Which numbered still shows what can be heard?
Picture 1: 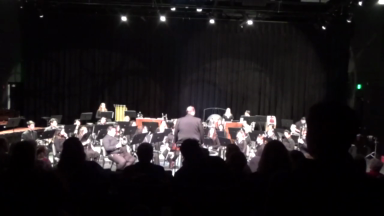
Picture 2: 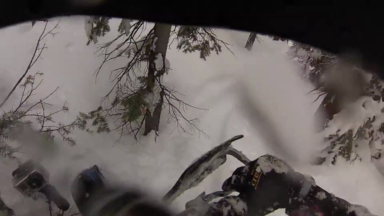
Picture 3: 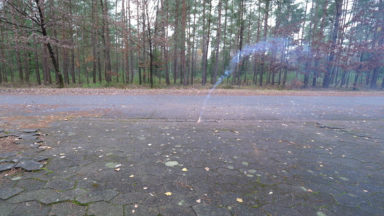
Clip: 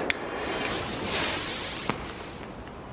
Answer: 3